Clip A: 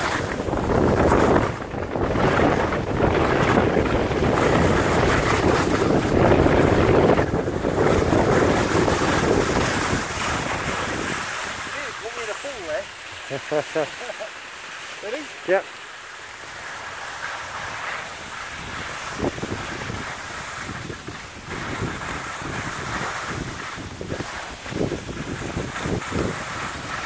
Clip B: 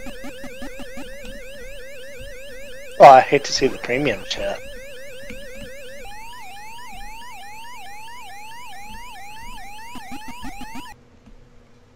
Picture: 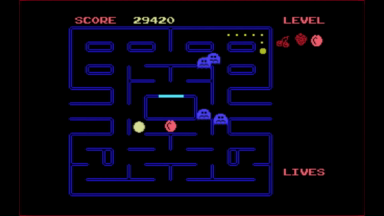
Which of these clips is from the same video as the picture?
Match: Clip B